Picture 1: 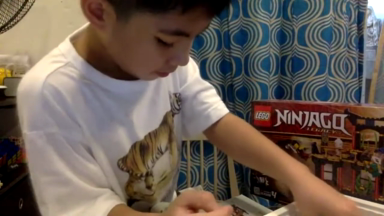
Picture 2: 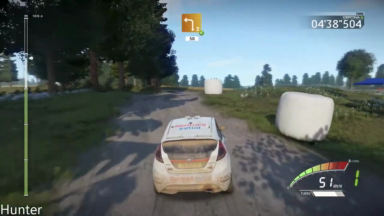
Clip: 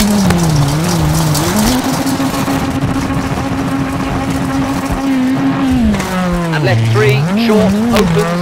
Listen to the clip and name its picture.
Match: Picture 2